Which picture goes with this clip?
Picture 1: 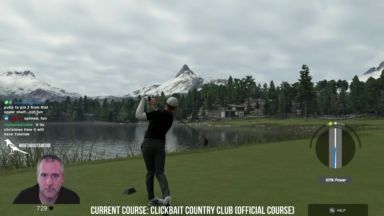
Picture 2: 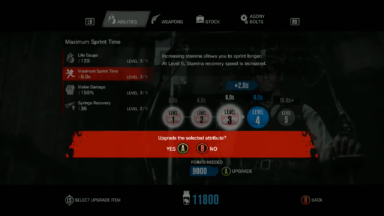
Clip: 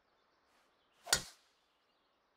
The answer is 1